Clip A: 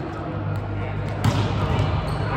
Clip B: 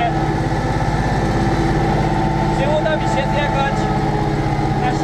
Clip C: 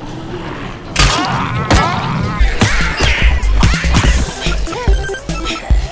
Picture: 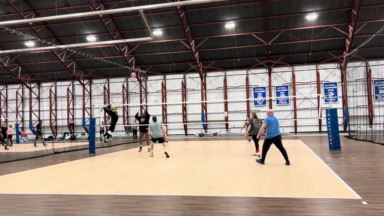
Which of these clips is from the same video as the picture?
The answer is A